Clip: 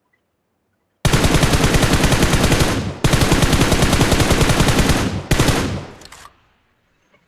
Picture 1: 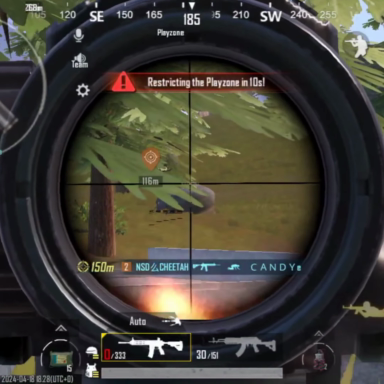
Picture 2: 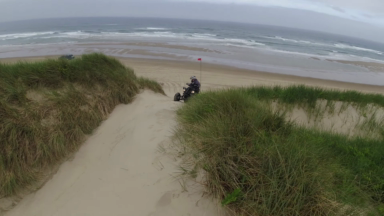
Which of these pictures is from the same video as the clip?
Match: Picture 1